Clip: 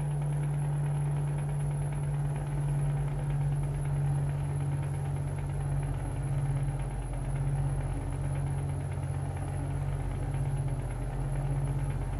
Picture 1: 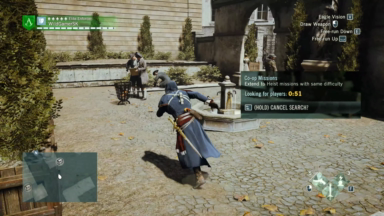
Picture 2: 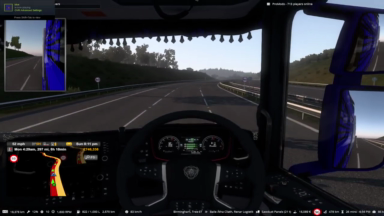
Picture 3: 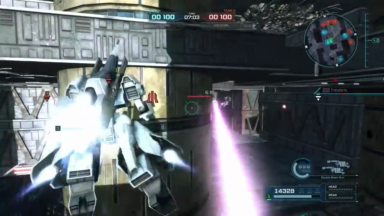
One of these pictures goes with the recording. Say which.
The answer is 2